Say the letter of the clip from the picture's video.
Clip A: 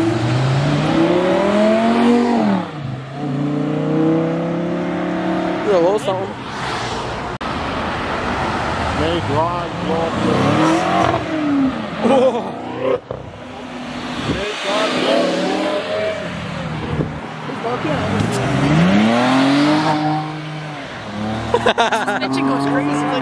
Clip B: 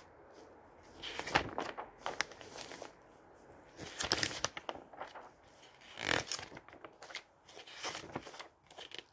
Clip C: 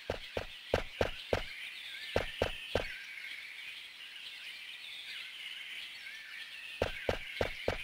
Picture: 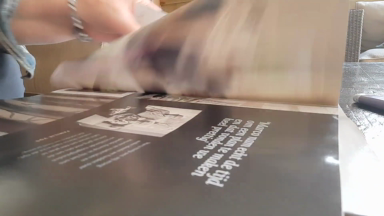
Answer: B